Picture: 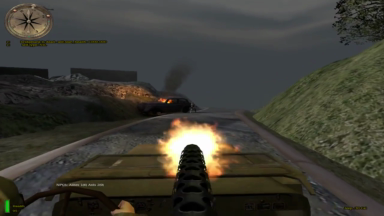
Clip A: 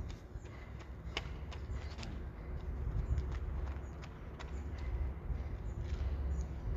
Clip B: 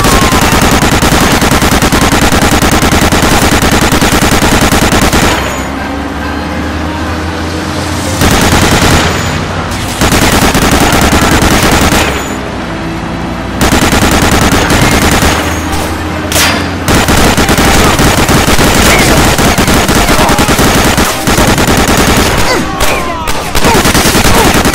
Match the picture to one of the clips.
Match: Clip B